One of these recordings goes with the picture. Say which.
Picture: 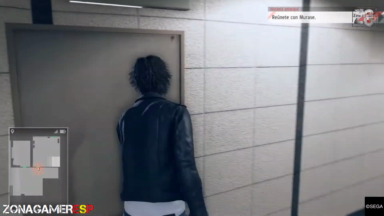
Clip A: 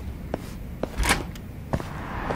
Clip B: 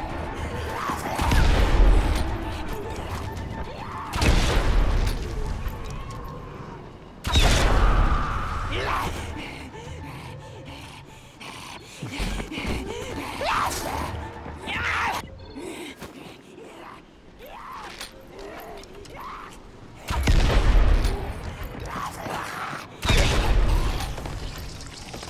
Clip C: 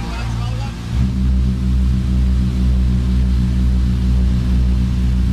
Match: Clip A